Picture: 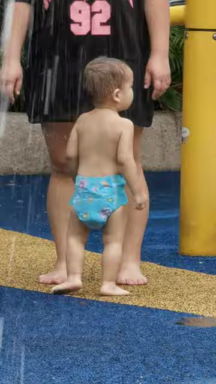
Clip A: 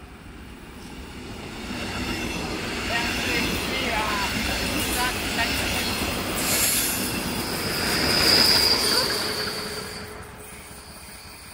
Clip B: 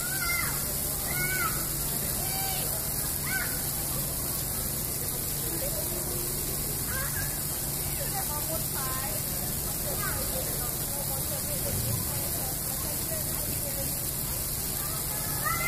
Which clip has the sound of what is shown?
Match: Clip B